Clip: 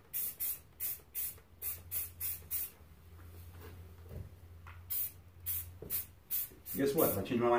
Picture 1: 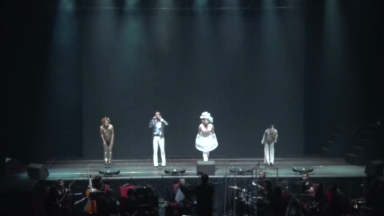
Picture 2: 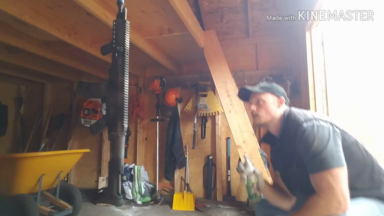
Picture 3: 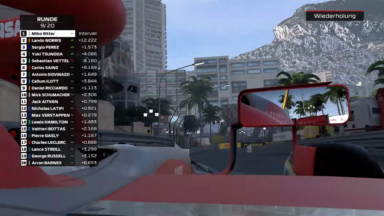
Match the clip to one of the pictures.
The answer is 2